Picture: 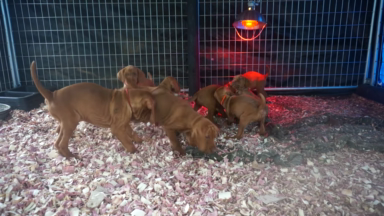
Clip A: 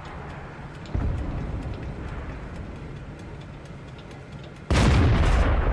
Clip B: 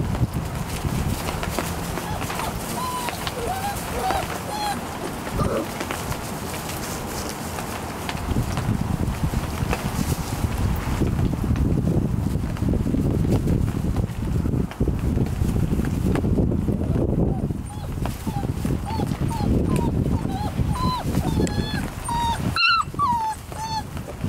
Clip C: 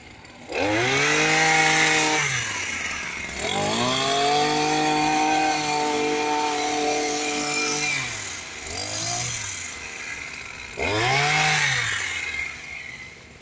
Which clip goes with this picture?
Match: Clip B